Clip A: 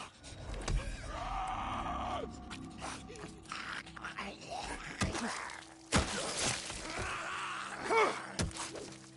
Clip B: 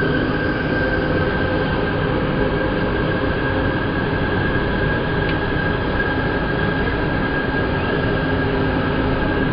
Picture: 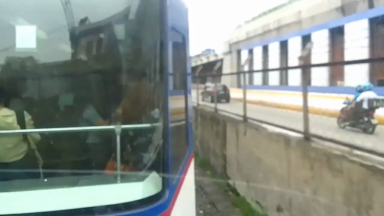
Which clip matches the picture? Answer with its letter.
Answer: B